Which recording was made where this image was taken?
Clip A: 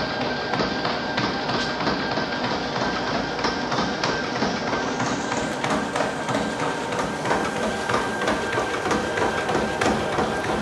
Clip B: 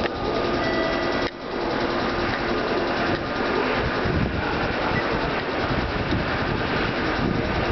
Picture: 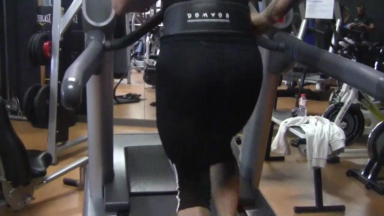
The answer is A